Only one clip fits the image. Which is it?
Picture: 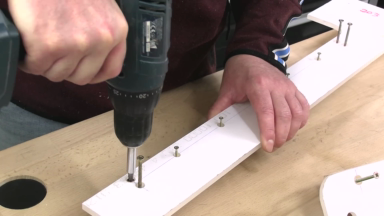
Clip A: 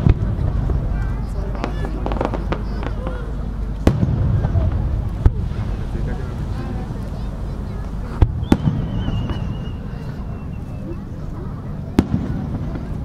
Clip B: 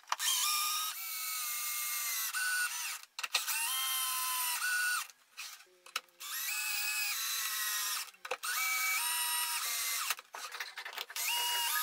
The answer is B